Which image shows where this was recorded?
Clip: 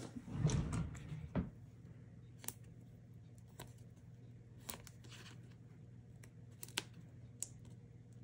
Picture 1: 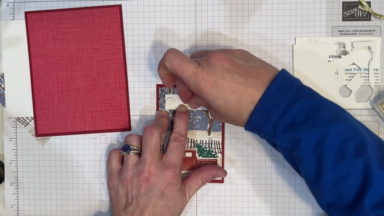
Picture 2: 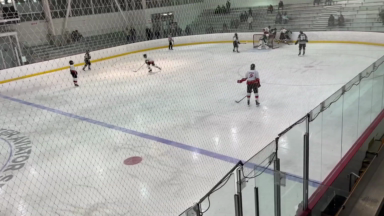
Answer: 1